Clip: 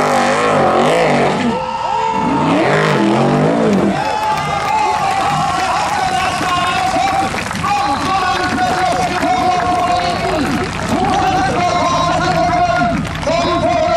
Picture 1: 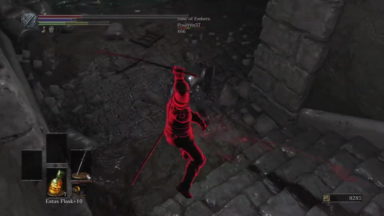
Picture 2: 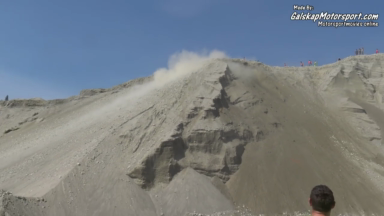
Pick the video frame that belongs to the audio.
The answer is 2